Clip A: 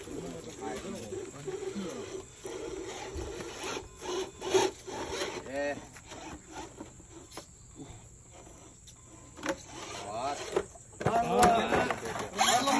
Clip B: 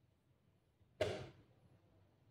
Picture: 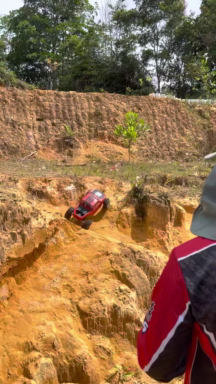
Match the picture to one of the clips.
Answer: A